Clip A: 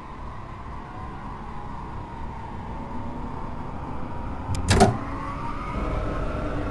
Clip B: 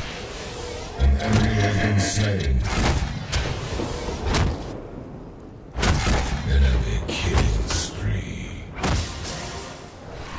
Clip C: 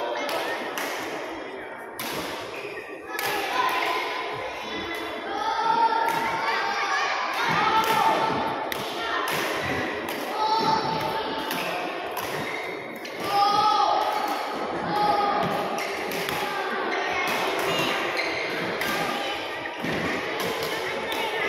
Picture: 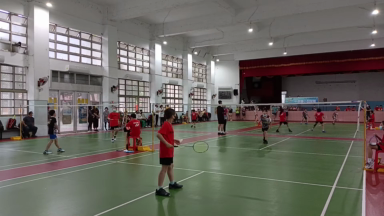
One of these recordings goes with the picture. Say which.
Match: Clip C